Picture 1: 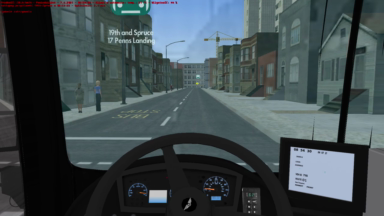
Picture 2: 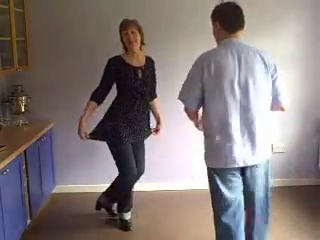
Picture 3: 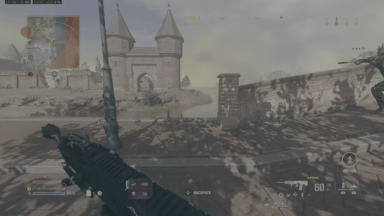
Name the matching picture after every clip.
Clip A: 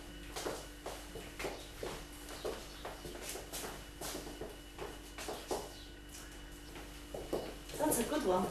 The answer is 2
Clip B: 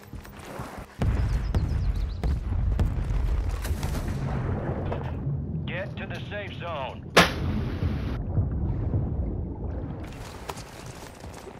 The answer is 3